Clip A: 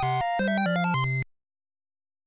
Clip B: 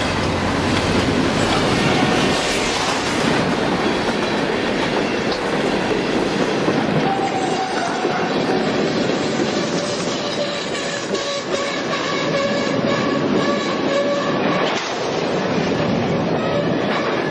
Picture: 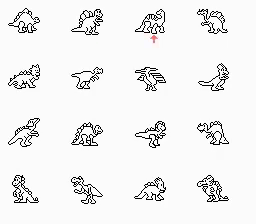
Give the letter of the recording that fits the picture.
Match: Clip A